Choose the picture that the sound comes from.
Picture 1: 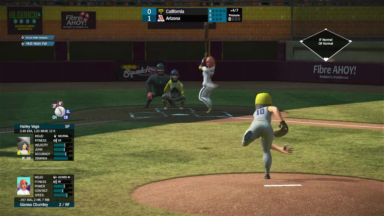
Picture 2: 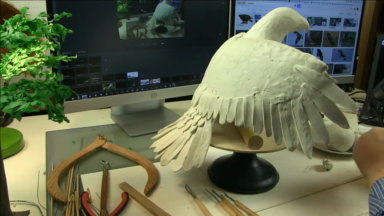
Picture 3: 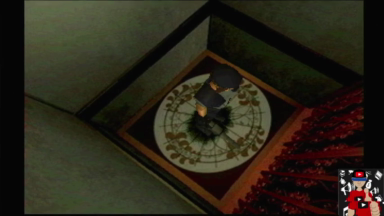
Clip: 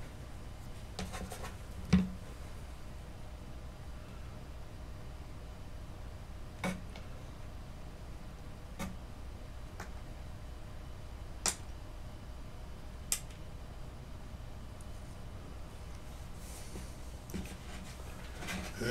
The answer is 2